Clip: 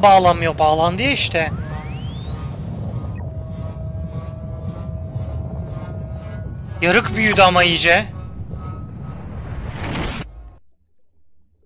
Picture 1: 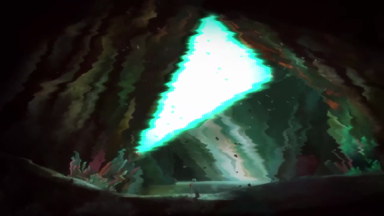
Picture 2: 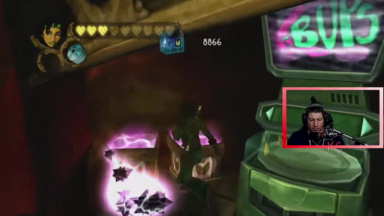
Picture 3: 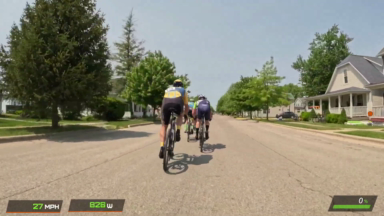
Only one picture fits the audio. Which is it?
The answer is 1